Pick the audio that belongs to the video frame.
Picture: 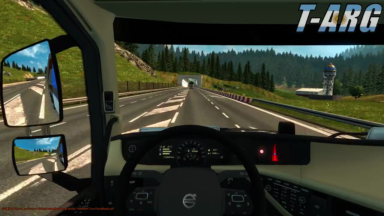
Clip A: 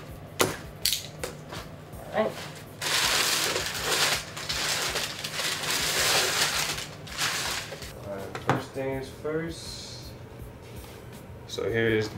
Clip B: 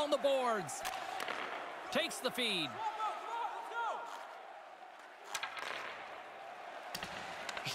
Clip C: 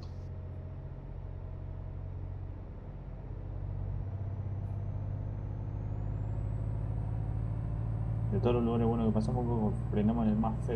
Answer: C